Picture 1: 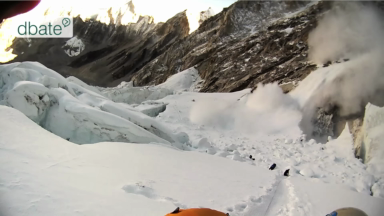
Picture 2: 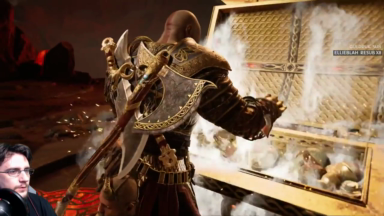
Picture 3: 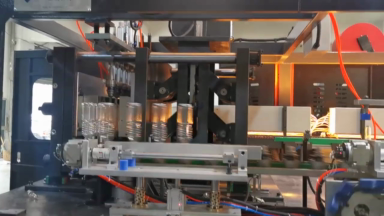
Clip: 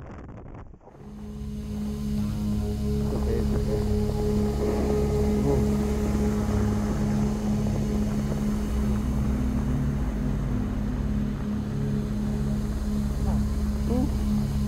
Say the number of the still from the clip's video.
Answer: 1